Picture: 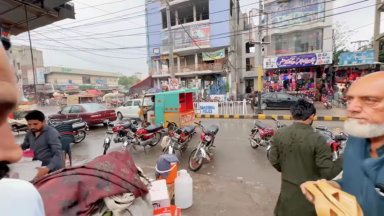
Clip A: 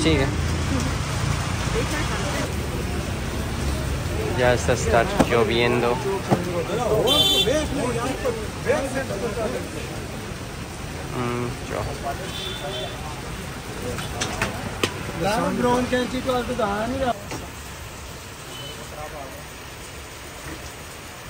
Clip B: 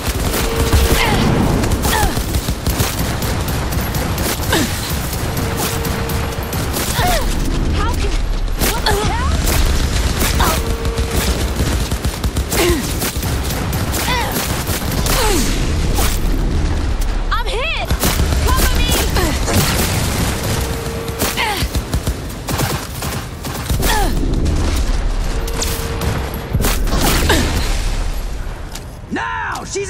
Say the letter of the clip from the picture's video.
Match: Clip A